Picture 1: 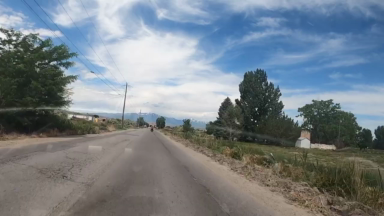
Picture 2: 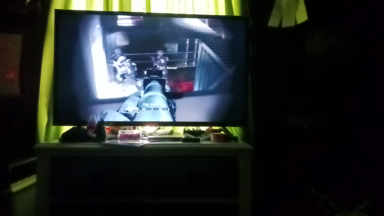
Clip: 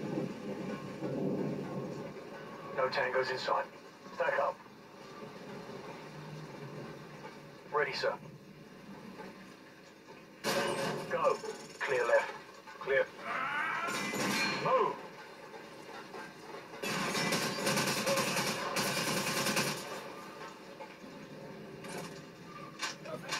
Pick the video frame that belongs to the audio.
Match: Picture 2